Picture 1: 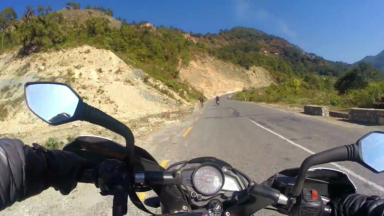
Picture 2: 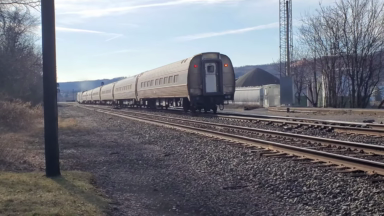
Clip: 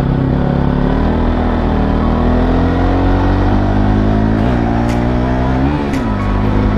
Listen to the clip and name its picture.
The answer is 1